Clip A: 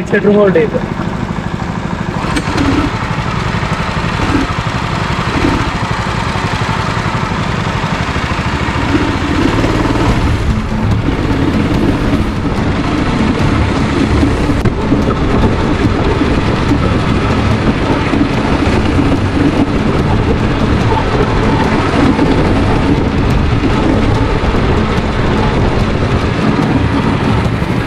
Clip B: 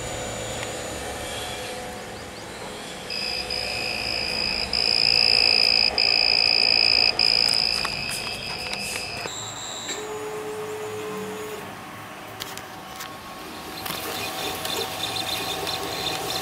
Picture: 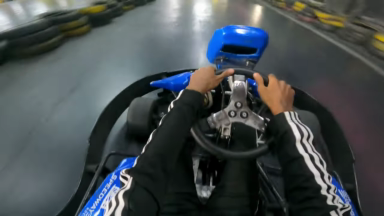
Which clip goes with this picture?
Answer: A